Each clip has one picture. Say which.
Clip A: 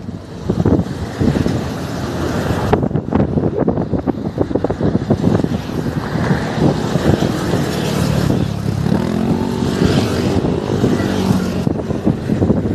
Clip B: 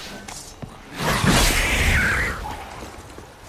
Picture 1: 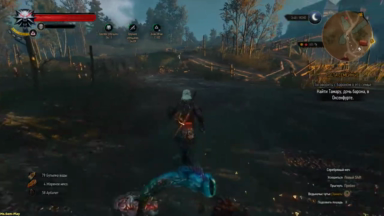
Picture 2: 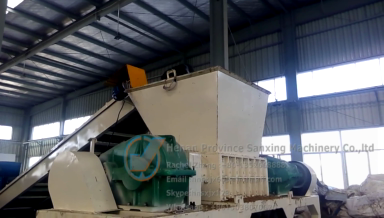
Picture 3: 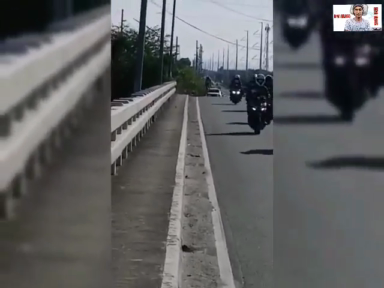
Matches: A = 3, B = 1